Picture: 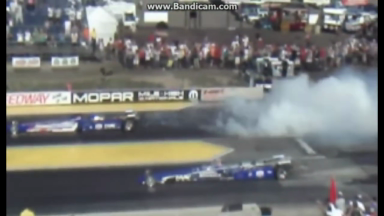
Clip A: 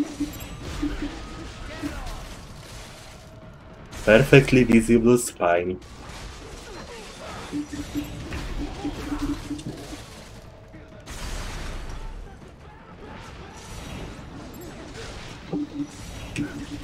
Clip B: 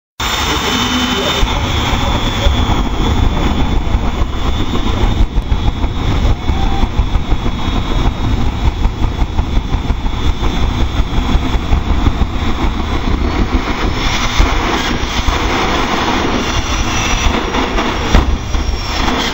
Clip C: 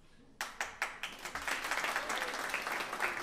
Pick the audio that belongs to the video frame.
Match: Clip B